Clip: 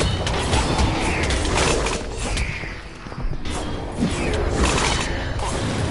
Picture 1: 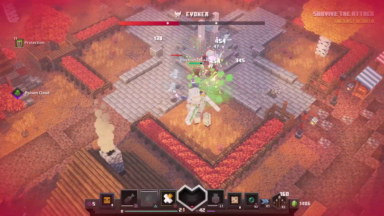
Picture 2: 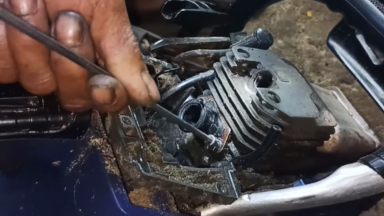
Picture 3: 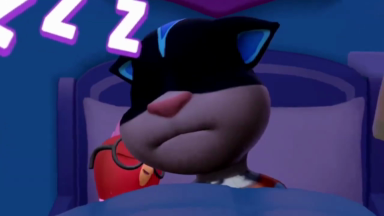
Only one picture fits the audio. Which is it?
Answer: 1